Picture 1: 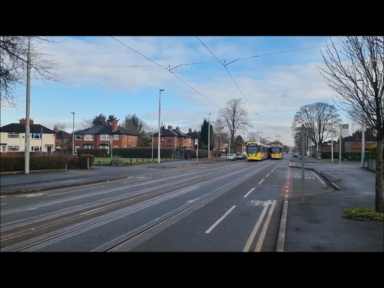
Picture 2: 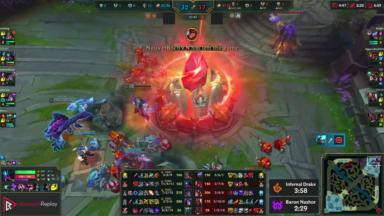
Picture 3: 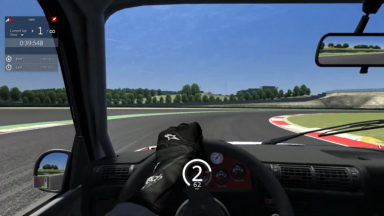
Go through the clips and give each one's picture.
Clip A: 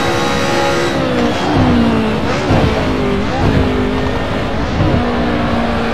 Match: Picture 3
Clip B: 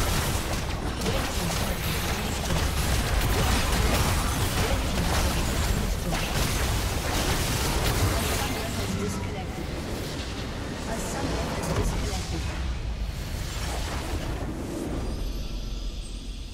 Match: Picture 2